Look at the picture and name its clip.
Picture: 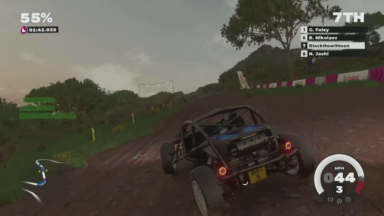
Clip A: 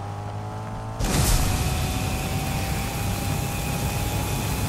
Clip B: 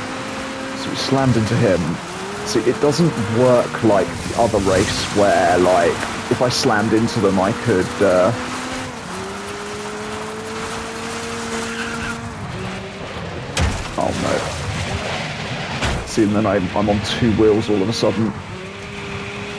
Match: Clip B